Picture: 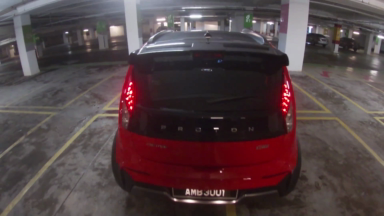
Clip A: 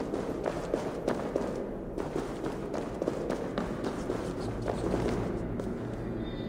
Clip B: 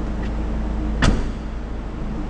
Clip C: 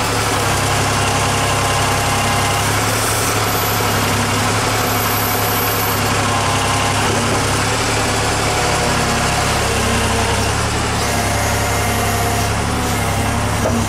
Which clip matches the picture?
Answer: B